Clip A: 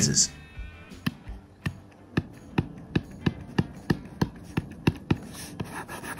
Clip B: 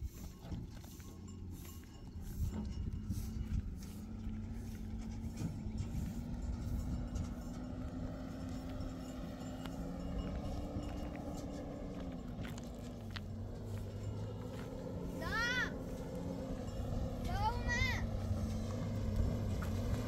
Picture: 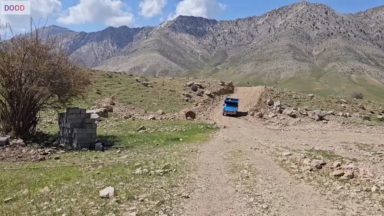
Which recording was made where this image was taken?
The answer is B